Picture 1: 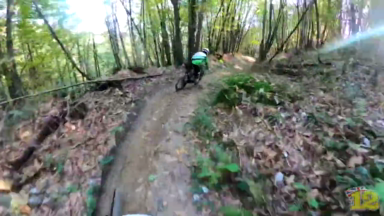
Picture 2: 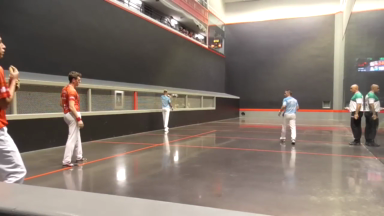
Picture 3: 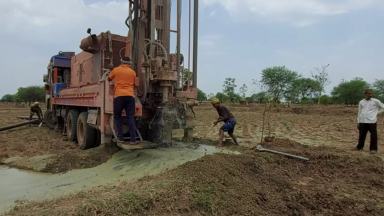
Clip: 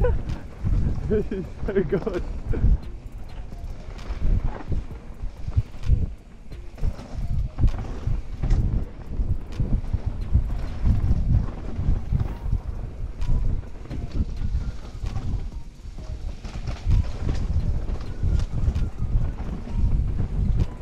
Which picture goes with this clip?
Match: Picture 1